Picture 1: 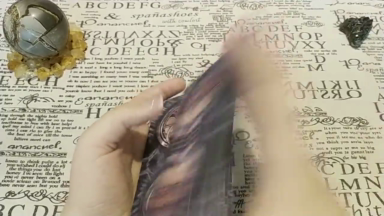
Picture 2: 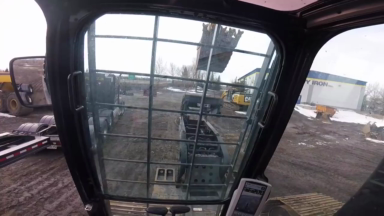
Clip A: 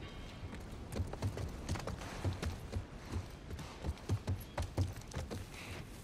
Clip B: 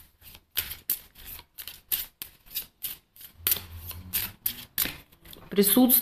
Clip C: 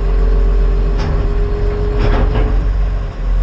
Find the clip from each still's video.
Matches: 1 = B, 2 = C